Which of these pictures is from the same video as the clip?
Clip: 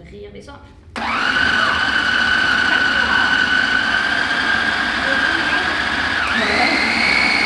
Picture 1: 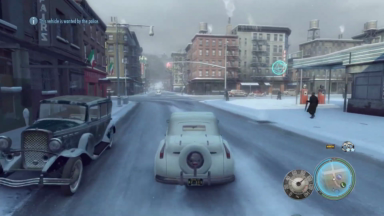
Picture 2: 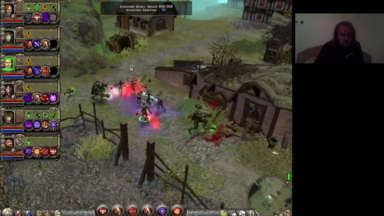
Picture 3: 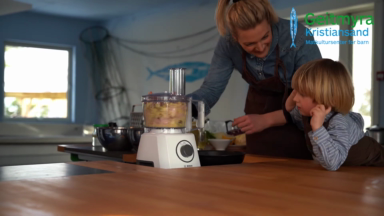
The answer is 3